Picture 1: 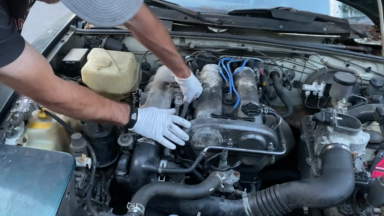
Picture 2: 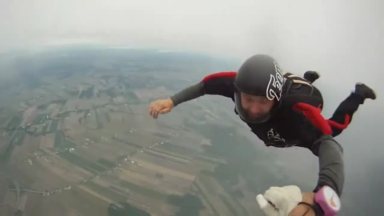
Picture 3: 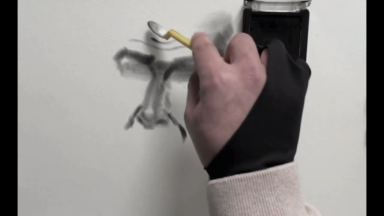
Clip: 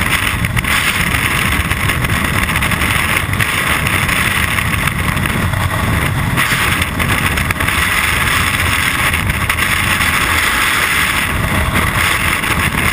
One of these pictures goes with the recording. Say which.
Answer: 2